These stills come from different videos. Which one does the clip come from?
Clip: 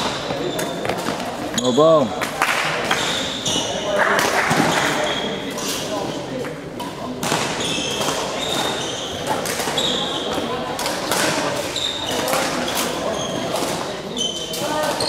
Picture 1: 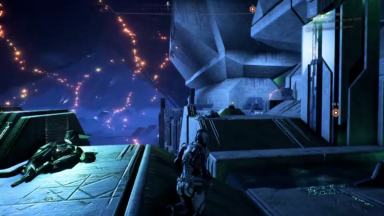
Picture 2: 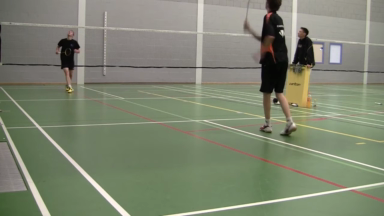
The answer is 2